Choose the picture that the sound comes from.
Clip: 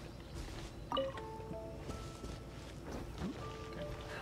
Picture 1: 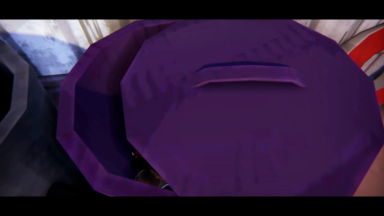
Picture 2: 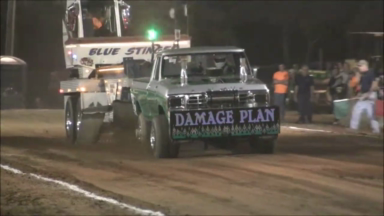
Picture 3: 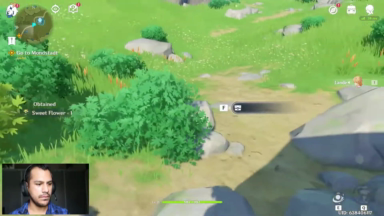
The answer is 3